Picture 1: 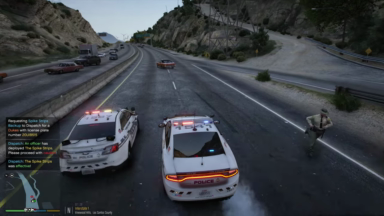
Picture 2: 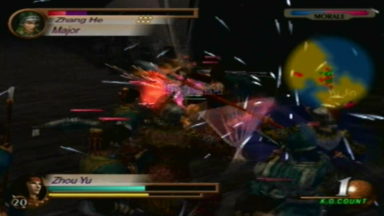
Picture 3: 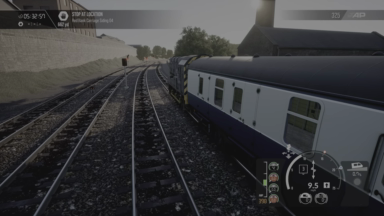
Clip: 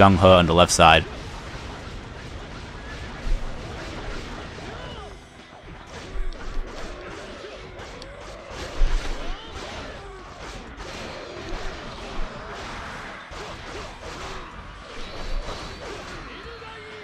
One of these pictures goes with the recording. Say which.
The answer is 2